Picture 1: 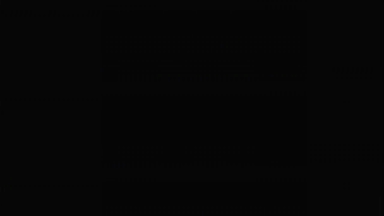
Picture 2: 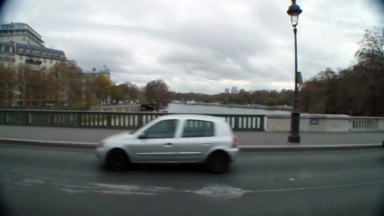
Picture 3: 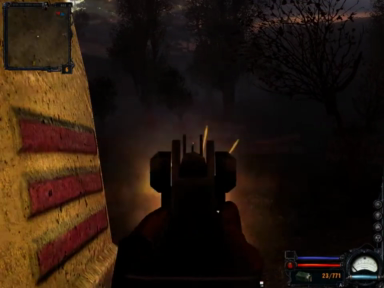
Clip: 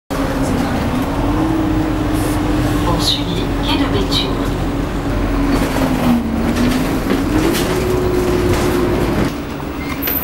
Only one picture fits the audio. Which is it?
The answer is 2